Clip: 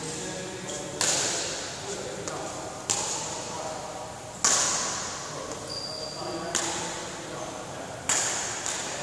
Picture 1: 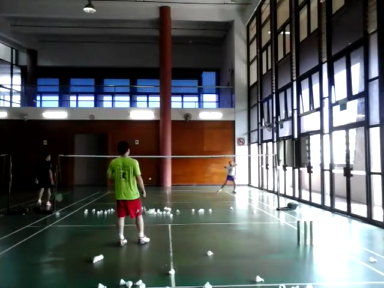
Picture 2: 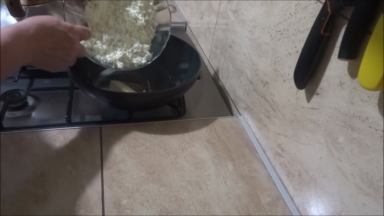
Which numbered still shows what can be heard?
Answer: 1